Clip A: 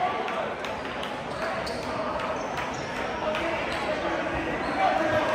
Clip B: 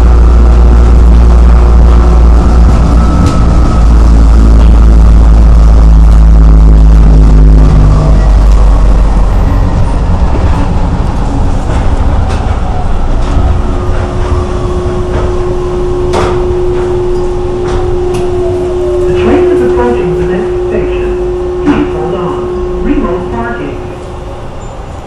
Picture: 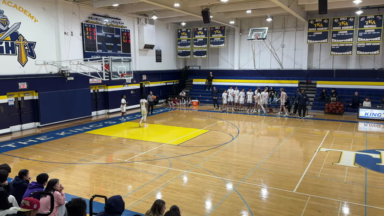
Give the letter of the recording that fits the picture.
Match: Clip A